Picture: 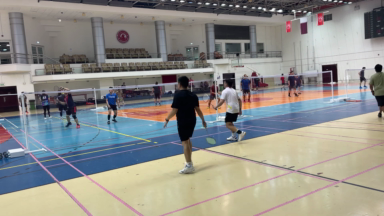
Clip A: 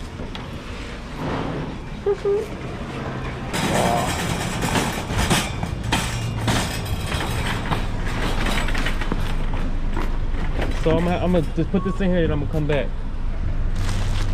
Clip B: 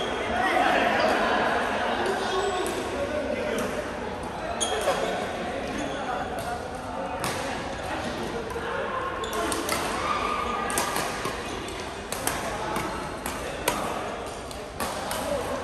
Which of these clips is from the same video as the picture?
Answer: B